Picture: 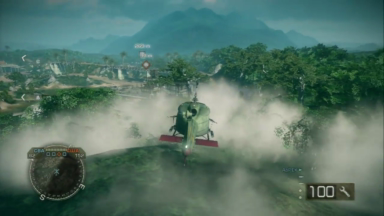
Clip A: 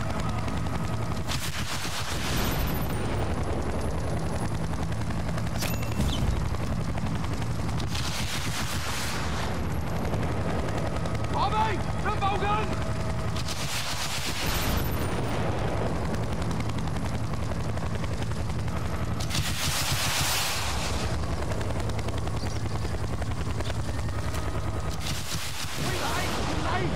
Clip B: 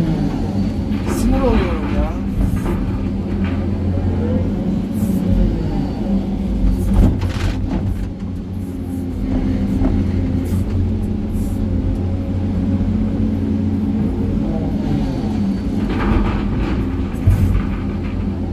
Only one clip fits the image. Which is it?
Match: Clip A